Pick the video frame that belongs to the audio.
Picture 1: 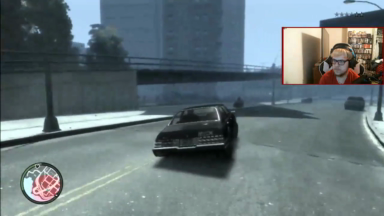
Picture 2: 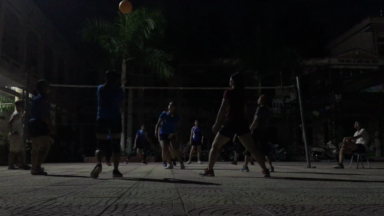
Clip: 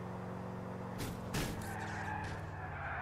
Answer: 1